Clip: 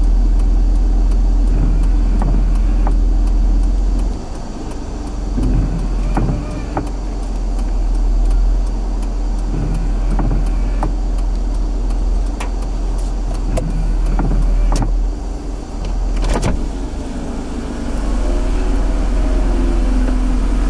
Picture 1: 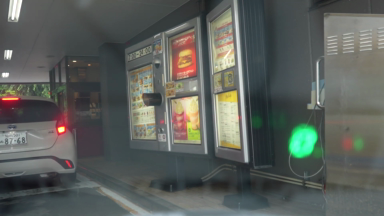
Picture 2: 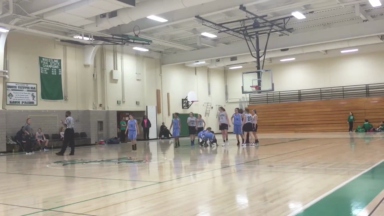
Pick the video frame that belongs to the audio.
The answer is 1